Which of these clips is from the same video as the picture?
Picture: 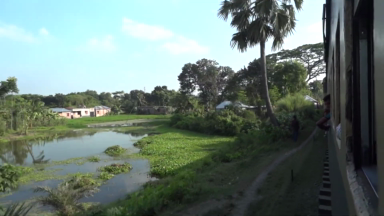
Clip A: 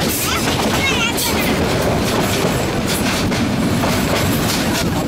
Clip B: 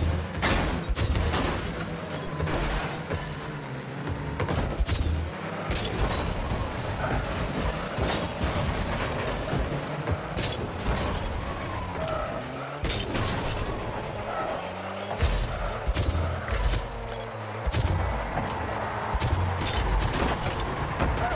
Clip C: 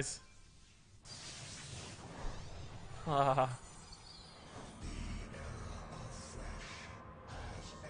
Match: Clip A